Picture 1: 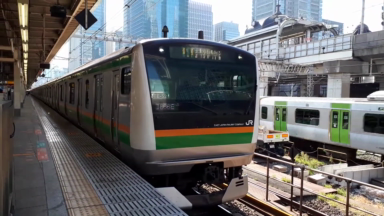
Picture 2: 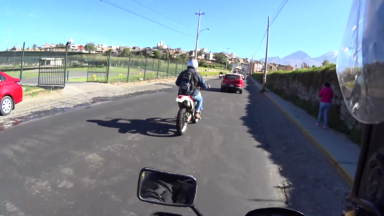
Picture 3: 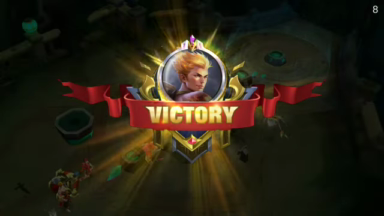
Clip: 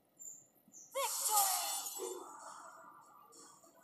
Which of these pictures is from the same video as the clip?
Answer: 3